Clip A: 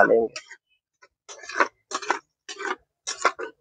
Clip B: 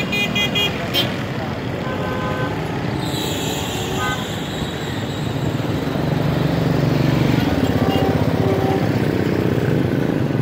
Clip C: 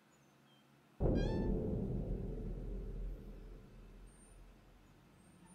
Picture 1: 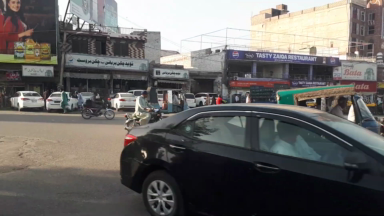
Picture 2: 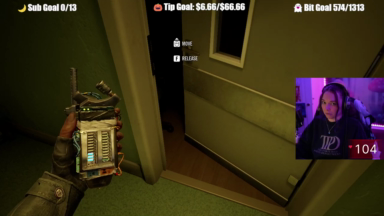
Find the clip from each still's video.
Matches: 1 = B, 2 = C